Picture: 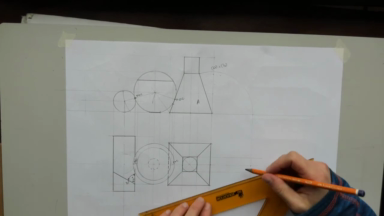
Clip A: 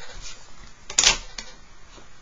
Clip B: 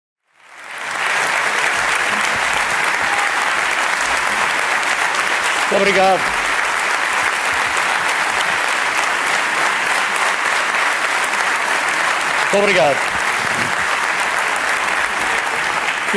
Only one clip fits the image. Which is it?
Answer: A